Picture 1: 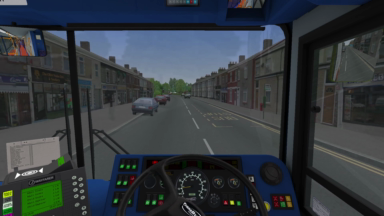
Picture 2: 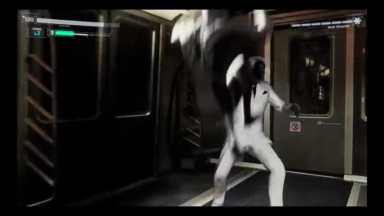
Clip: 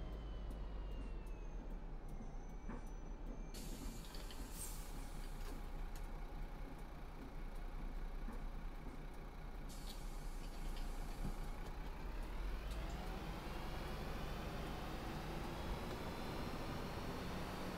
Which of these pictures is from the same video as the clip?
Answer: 1